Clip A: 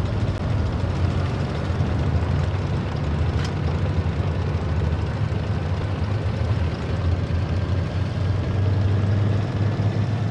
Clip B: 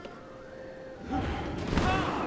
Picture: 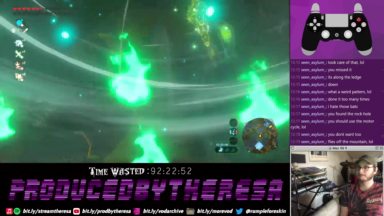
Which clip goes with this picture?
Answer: B